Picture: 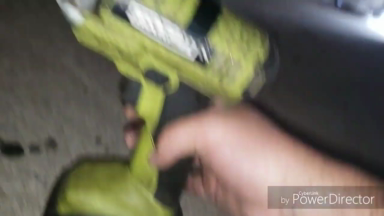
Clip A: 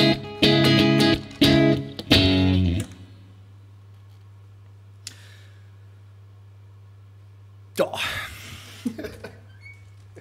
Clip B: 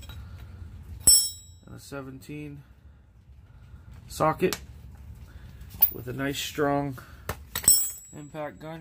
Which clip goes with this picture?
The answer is B